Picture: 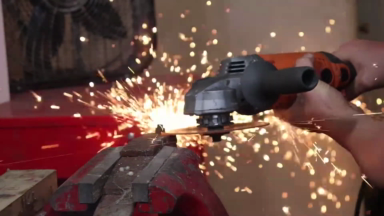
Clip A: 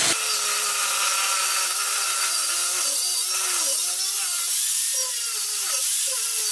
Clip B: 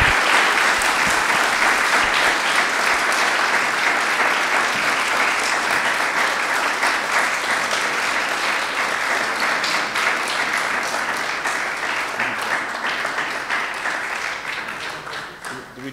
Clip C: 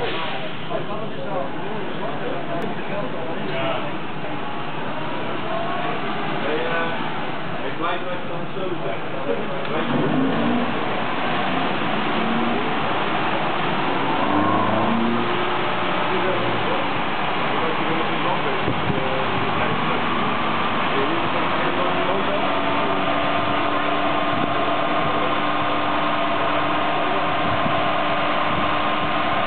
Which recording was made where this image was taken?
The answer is A